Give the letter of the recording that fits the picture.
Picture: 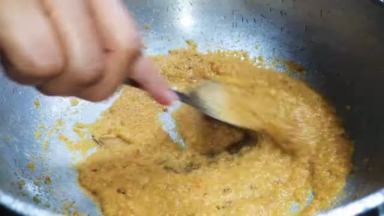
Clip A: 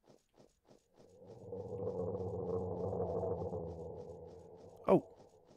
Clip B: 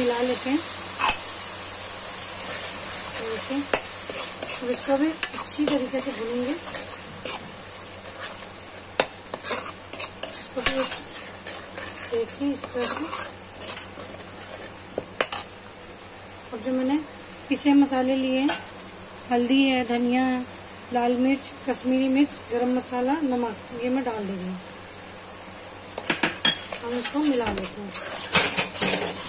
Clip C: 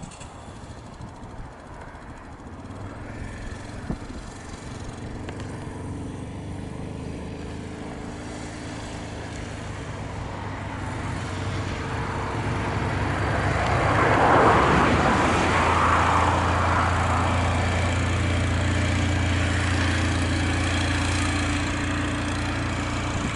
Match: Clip B